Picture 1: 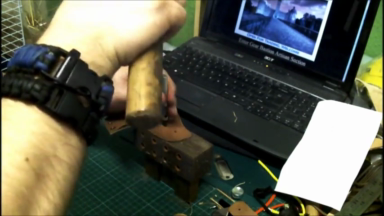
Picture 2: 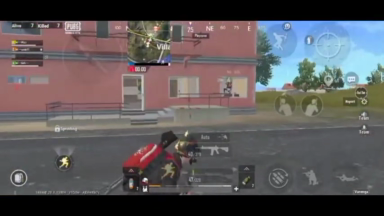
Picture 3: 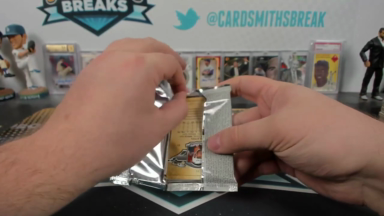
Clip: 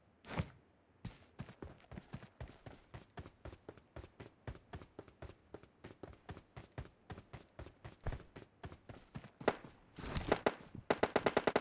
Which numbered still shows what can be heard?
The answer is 2